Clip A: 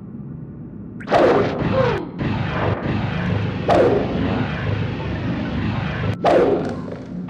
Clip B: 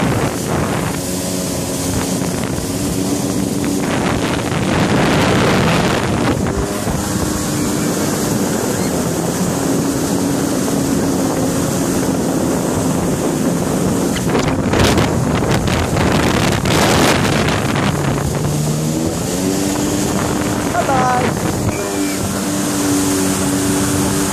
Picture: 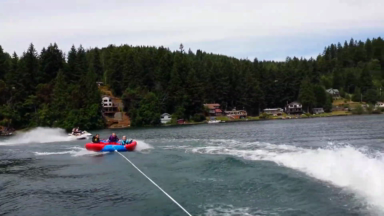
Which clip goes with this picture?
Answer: B